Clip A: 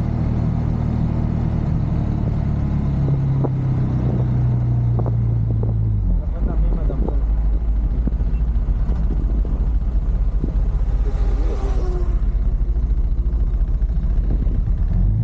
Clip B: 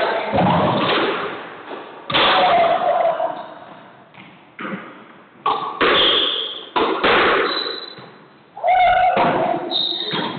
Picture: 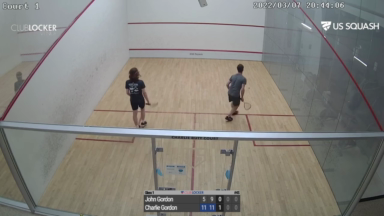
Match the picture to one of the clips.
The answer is B